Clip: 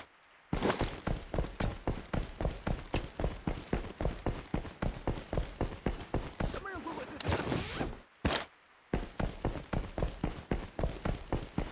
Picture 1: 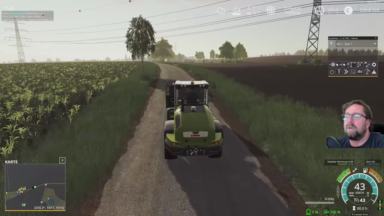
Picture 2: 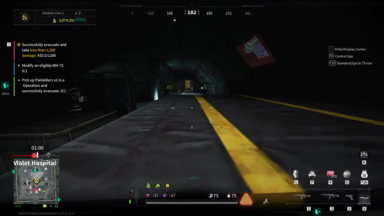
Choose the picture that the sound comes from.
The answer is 2